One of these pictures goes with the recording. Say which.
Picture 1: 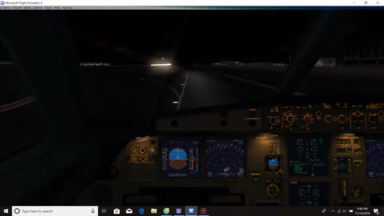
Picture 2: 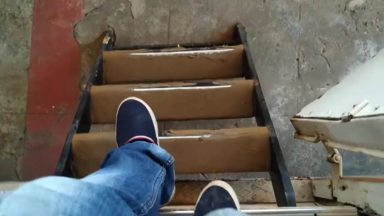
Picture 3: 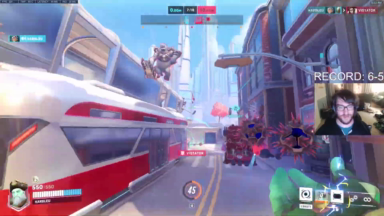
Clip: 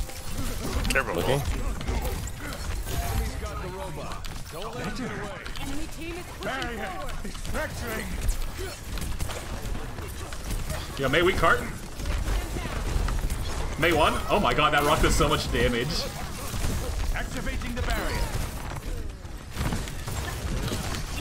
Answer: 3